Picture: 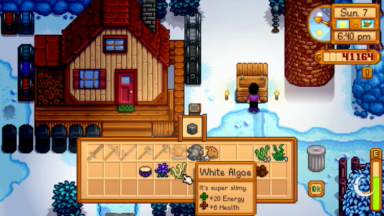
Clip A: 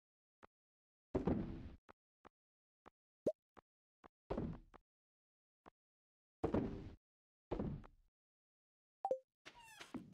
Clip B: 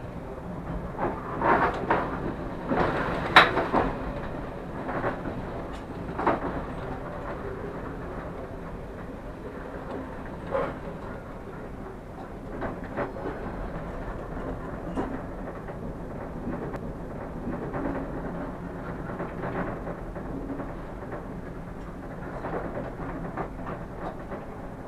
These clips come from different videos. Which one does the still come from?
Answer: A